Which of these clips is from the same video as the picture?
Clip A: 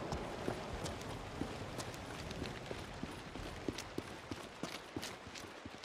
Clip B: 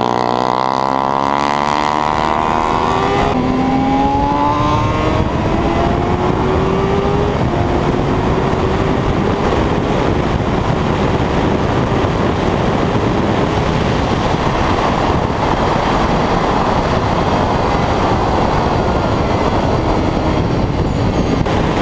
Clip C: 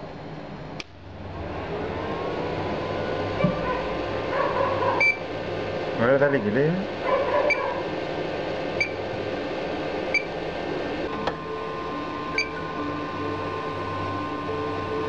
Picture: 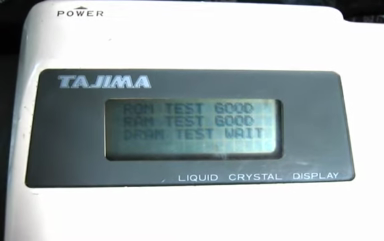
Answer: C